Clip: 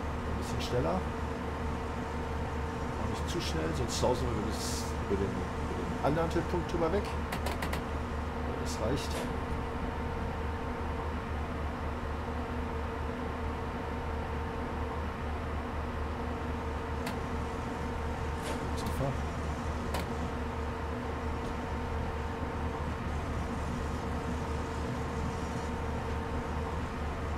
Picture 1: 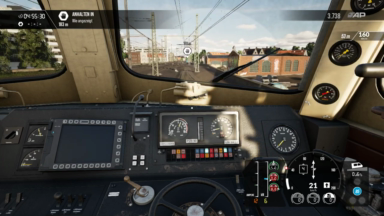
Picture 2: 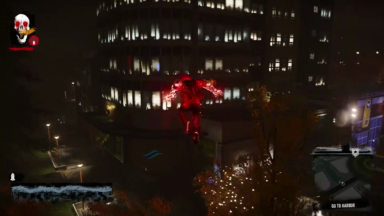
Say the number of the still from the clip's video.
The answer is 1